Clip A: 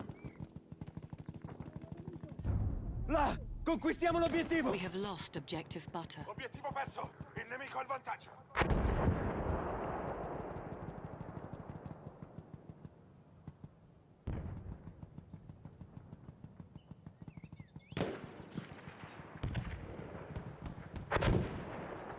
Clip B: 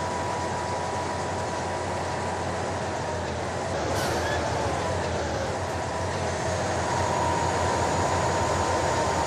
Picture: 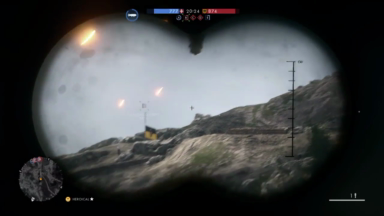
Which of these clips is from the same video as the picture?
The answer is A